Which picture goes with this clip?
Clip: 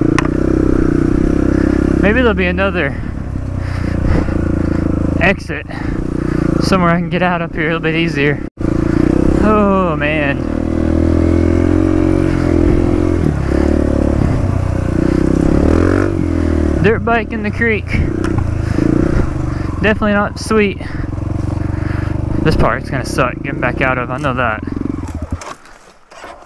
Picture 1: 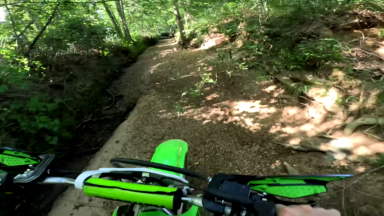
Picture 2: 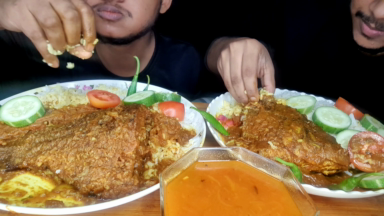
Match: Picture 1